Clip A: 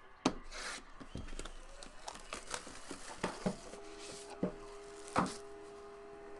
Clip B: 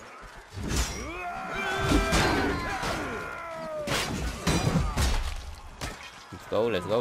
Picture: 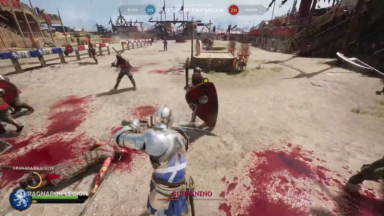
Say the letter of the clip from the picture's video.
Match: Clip B